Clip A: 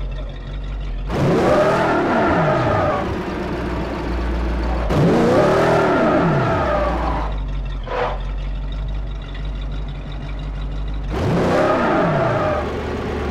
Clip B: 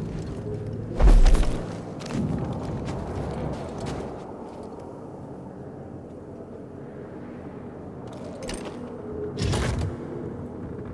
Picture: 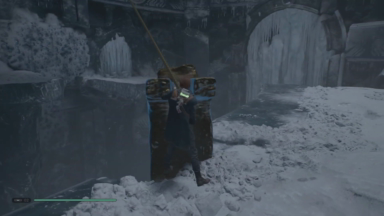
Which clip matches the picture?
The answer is B